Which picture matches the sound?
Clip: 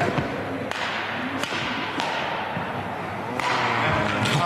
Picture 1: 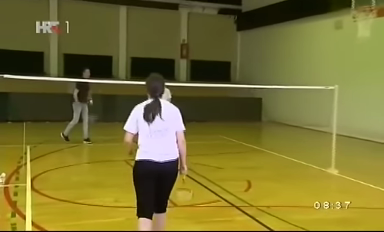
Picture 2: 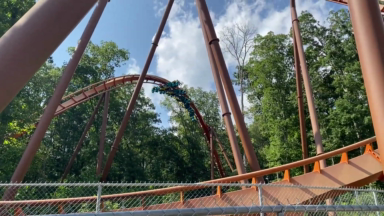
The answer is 1